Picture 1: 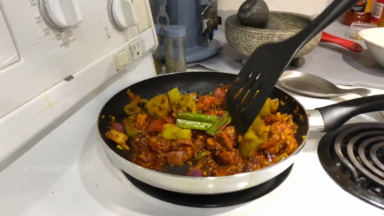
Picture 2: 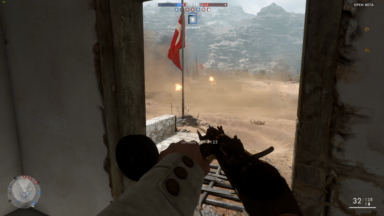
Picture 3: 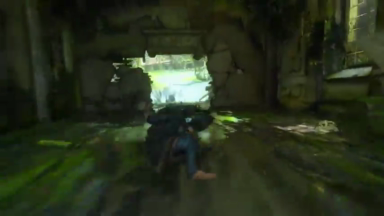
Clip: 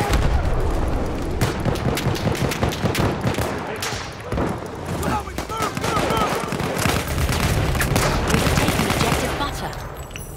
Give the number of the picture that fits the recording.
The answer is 2